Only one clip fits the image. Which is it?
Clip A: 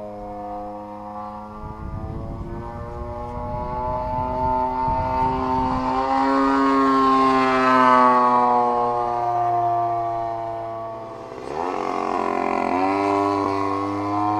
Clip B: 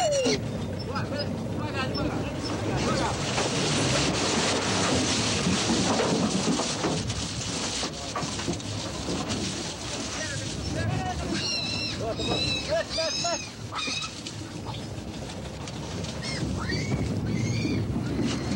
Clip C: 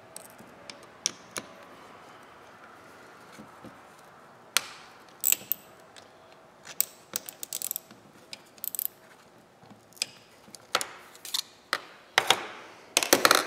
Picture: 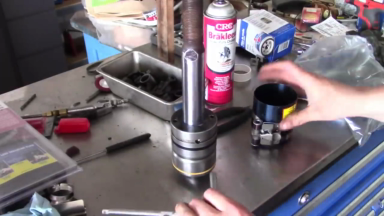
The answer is C